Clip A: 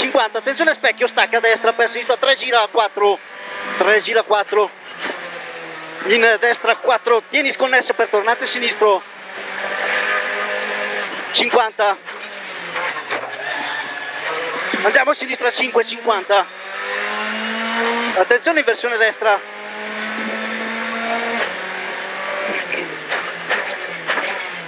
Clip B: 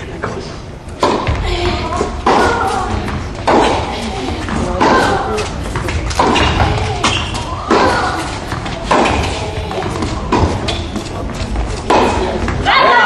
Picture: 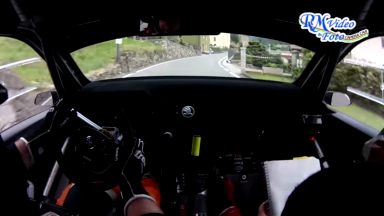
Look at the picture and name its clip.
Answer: A